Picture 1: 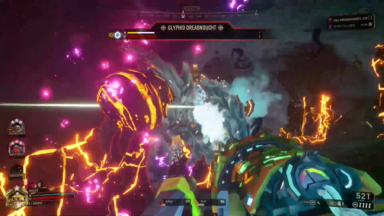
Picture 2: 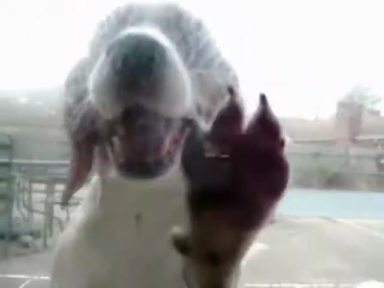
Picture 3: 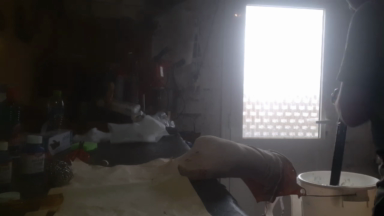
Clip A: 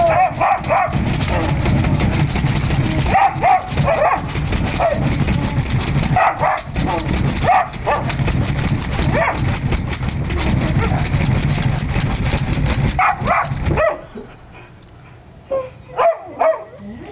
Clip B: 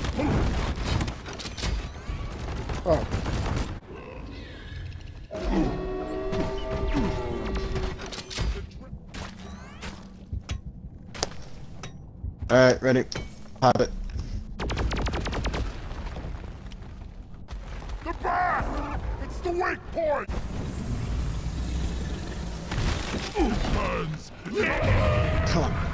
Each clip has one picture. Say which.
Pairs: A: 2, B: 1